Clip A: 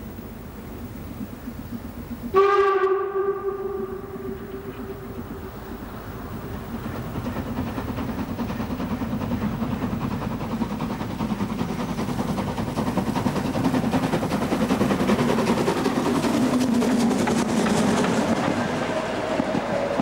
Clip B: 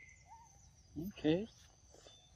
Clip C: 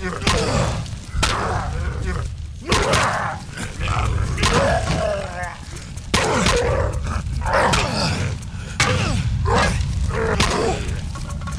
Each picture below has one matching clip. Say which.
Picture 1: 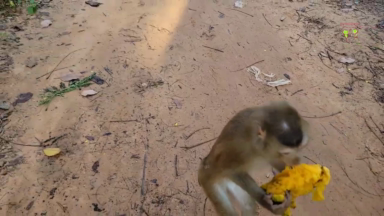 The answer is B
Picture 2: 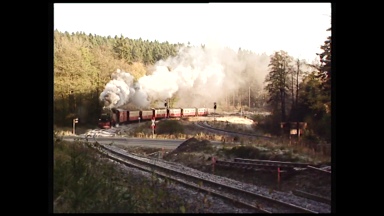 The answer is A